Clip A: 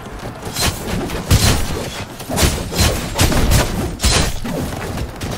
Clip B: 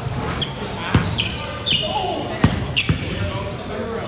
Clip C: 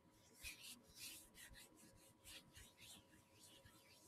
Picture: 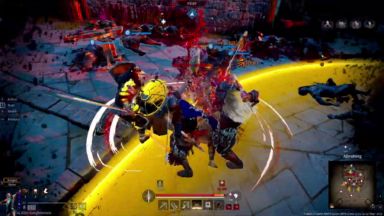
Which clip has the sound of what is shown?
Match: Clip A